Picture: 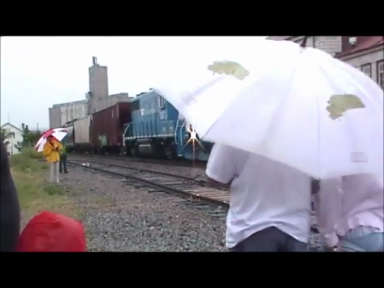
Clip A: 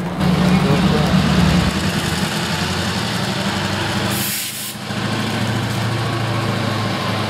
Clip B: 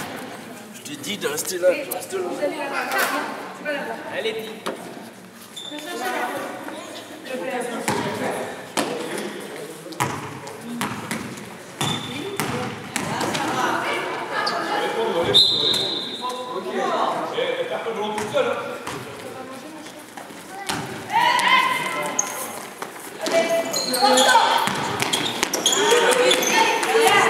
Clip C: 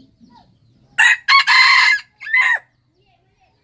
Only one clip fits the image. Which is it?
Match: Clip A